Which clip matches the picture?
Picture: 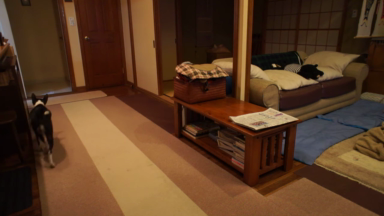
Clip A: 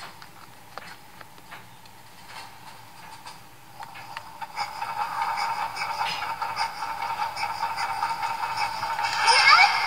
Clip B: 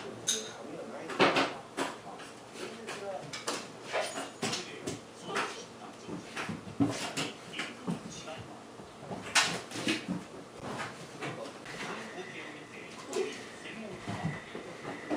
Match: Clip B